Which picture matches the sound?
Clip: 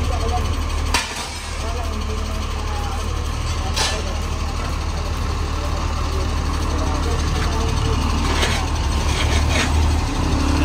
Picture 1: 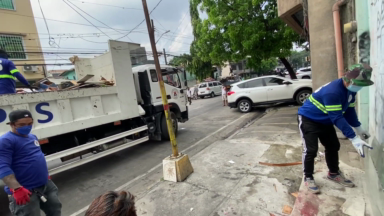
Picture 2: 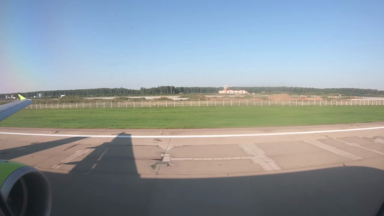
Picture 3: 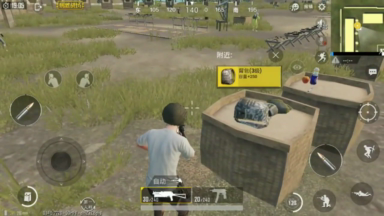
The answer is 1